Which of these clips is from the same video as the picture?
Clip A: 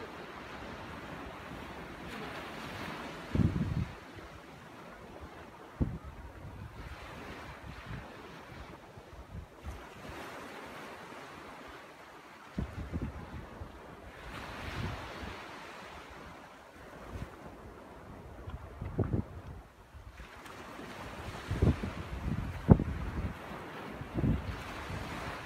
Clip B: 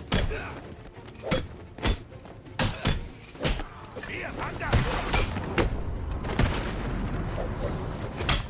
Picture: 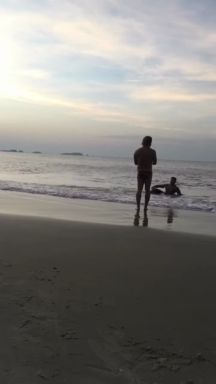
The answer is A